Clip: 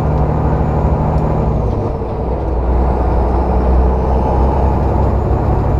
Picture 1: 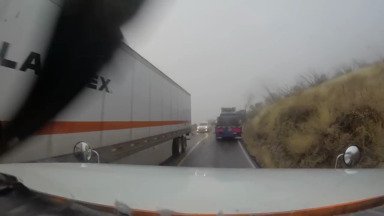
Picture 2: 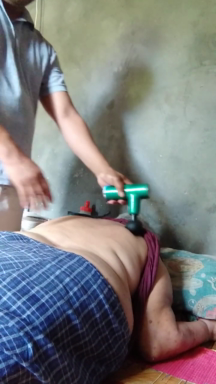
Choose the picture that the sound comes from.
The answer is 1